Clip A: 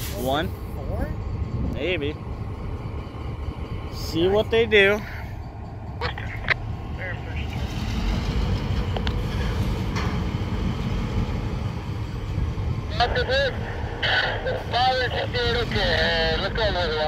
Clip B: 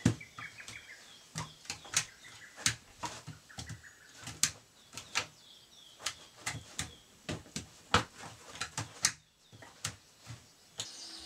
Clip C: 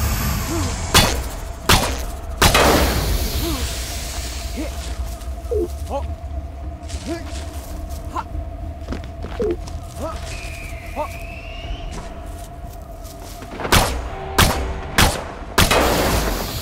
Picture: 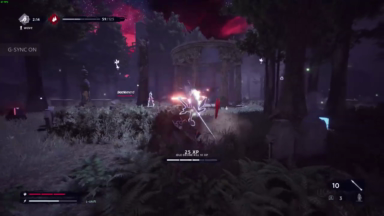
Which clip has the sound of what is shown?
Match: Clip C